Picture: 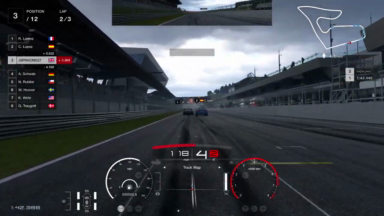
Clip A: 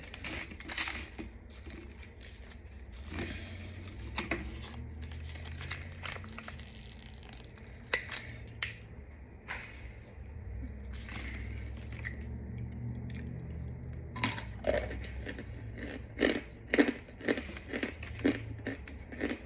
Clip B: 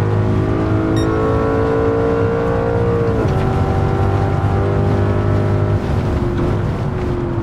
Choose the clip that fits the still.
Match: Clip B